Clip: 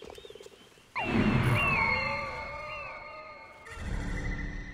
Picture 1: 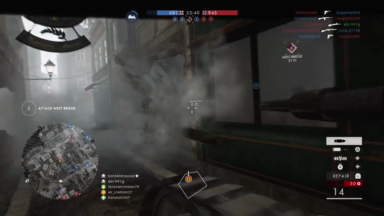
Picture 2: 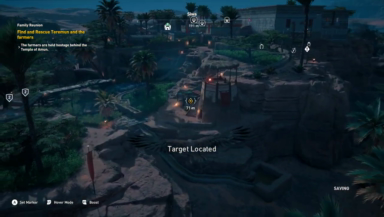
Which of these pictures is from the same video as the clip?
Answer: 2